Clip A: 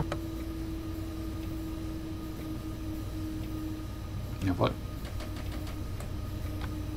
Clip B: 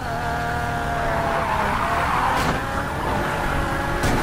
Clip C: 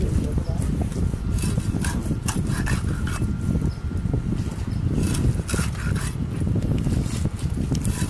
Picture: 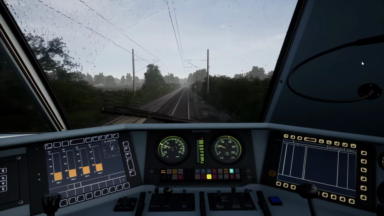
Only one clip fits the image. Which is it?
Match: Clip A